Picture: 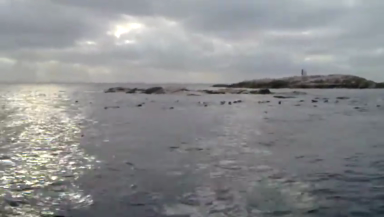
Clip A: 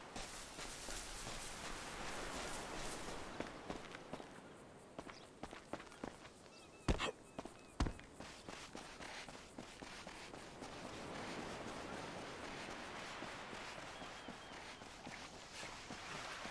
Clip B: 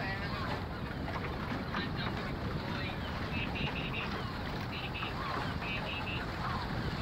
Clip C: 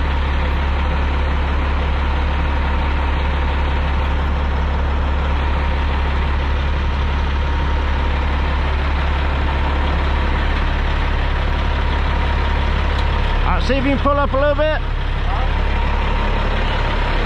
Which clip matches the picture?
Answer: B